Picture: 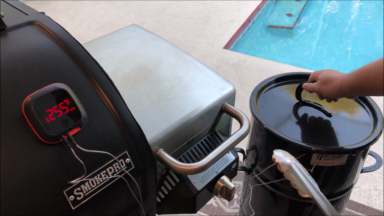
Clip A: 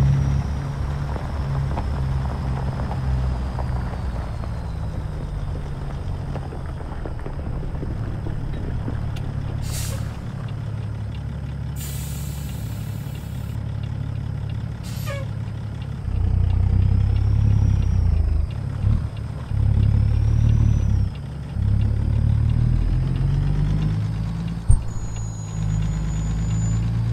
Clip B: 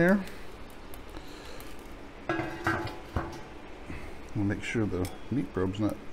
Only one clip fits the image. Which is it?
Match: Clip B